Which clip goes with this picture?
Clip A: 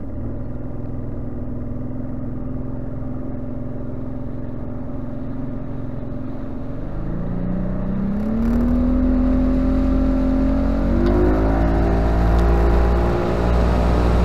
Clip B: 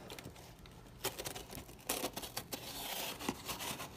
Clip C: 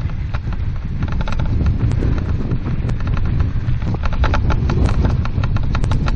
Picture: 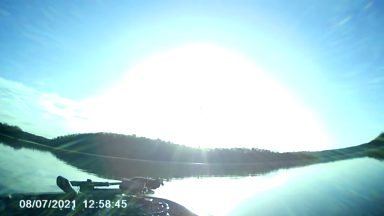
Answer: A